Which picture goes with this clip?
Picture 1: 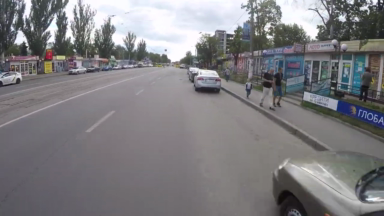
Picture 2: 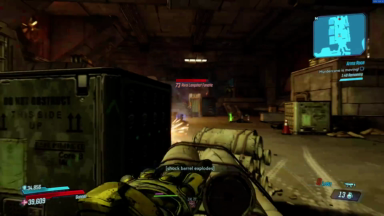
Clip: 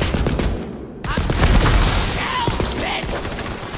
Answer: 2